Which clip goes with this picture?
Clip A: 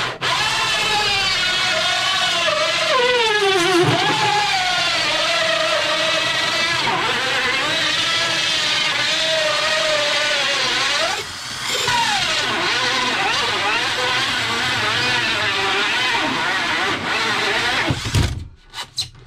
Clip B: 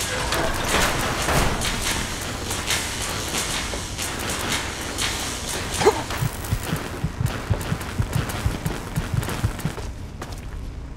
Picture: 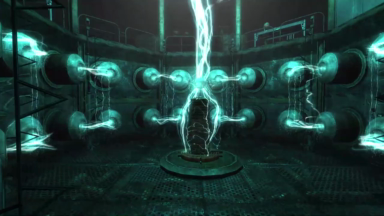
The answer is B